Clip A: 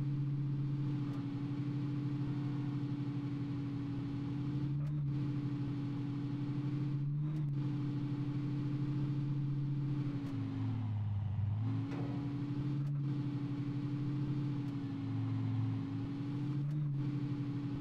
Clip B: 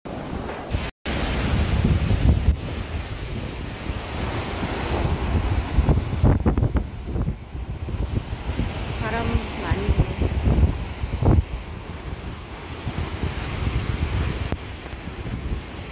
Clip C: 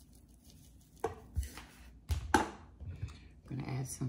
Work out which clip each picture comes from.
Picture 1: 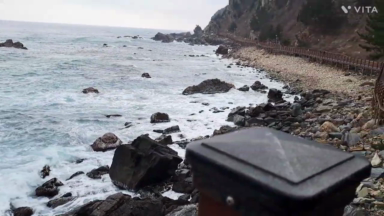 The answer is B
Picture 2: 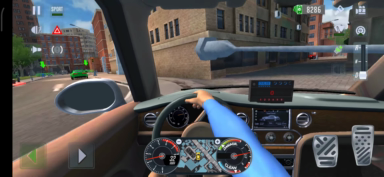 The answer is A